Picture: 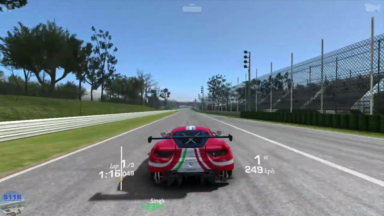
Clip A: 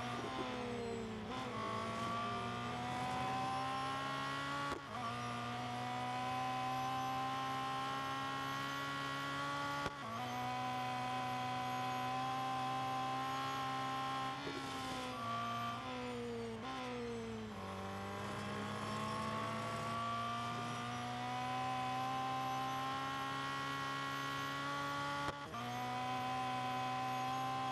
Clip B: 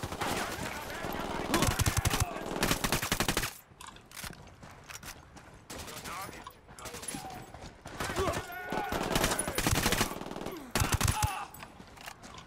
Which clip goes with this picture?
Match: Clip A